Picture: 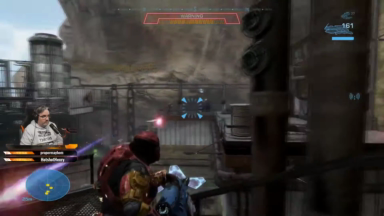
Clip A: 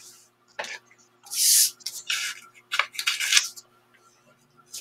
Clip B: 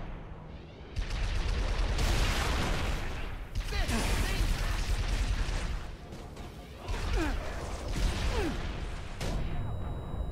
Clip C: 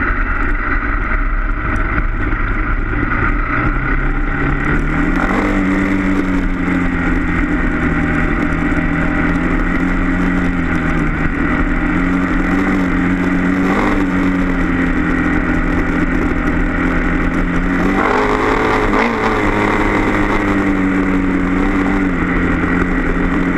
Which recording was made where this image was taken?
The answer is B